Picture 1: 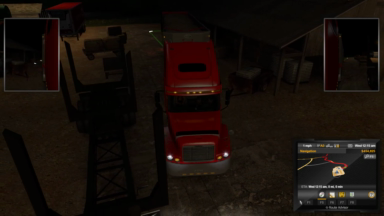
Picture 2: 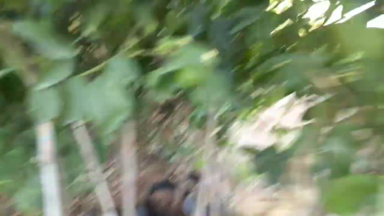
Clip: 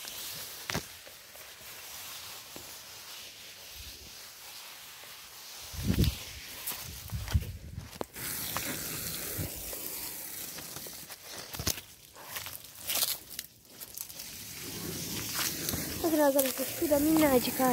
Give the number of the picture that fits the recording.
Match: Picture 2